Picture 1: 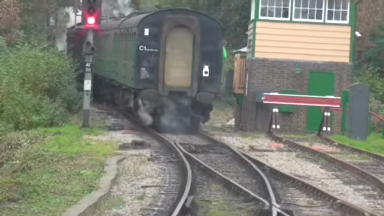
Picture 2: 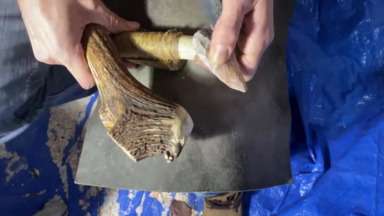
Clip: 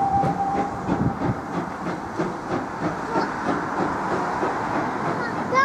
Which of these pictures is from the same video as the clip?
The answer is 1